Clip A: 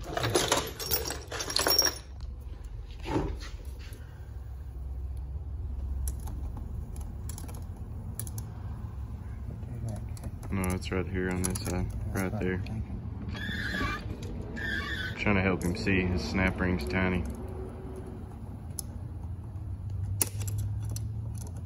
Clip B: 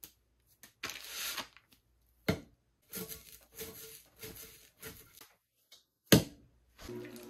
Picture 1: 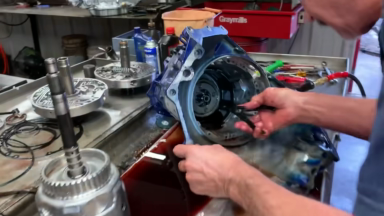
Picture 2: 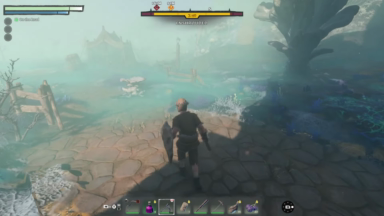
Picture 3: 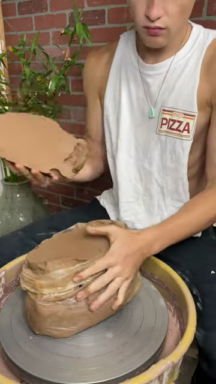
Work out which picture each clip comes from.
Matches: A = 1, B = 3